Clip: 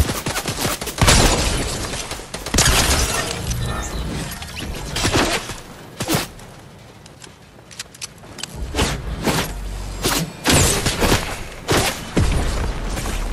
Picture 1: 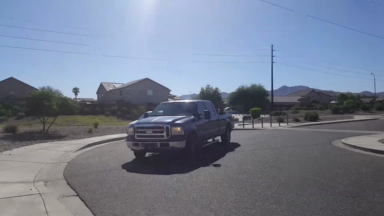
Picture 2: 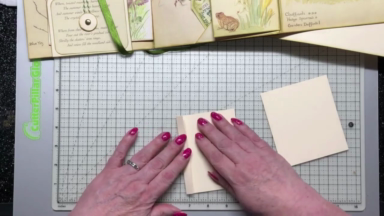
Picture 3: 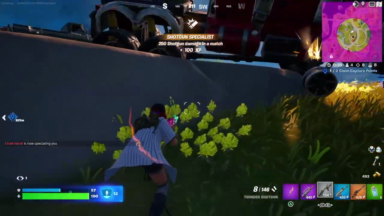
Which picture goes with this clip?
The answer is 3